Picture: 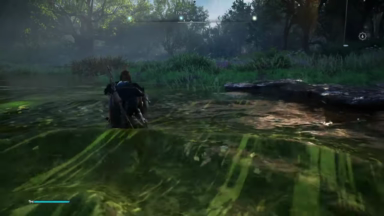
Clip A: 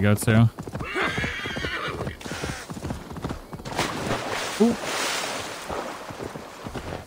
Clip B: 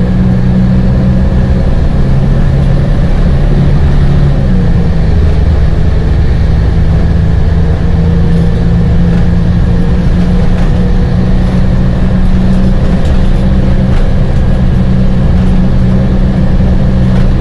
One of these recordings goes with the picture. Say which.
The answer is A